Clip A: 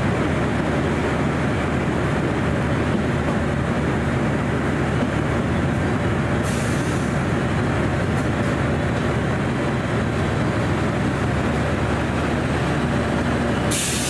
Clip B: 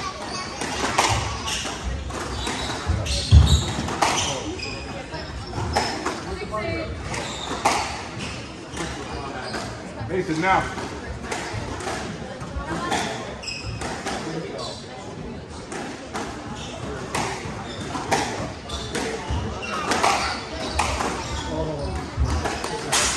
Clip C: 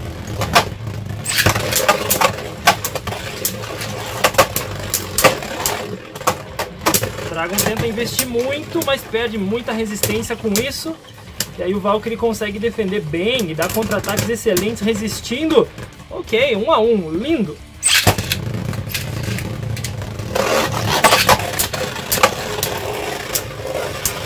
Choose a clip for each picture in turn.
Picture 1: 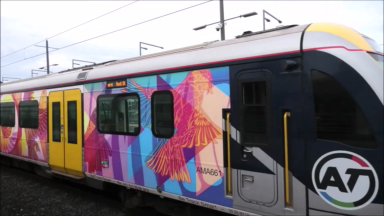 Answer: A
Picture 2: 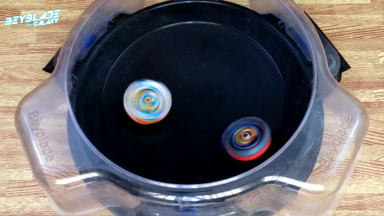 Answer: C